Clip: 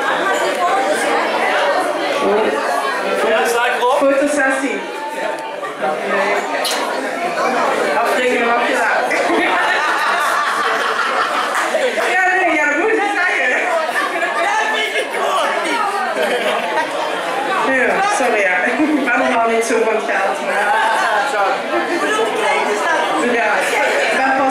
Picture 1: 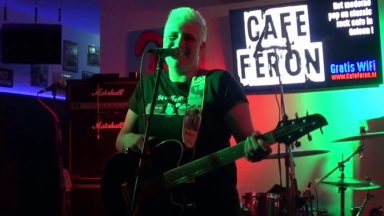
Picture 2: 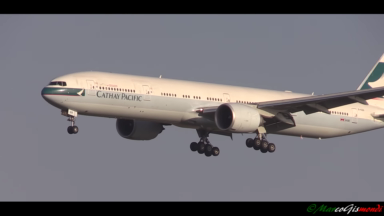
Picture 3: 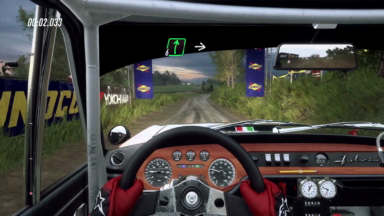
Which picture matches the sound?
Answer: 1